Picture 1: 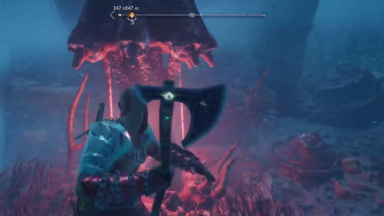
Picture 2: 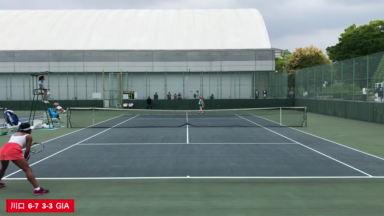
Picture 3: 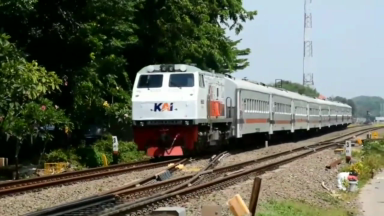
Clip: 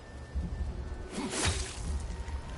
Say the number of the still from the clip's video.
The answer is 1